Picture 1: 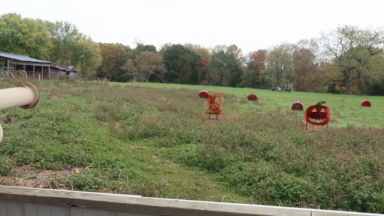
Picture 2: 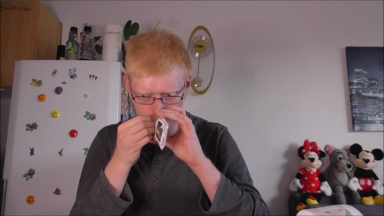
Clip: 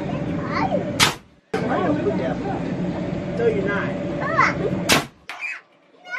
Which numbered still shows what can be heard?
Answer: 1